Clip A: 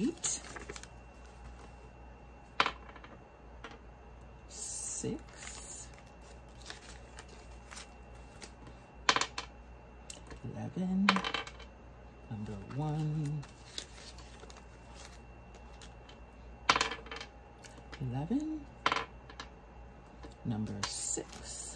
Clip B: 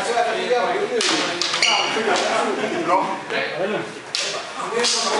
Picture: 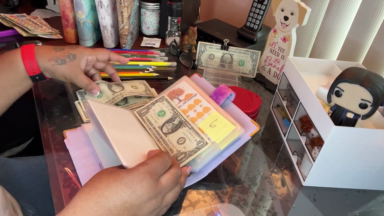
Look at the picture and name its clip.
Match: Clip A